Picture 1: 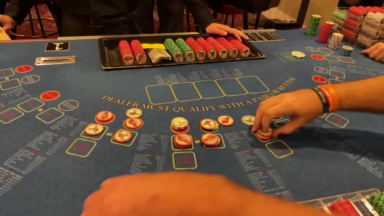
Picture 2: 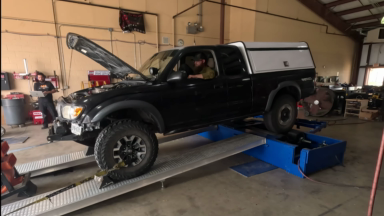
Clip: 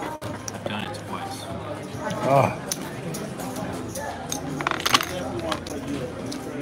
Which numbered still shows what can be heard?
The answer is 1